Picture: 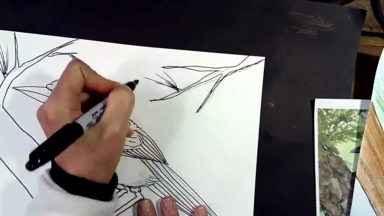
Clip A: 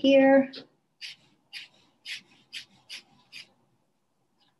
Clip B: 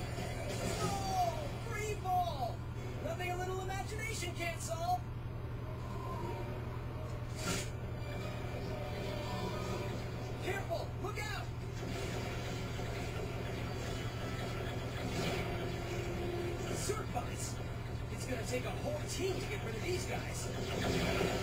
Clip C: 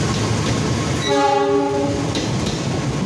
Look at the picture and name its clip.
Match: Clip A